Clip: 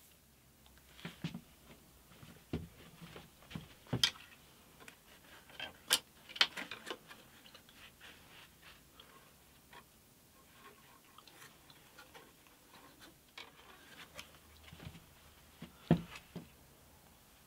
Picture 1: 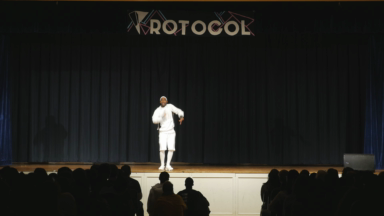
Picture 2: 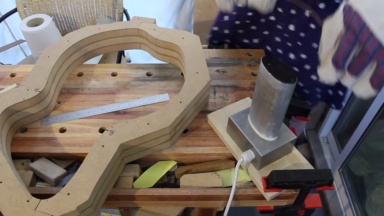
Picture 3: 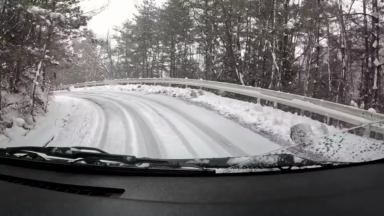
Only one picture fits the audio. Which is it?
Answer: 2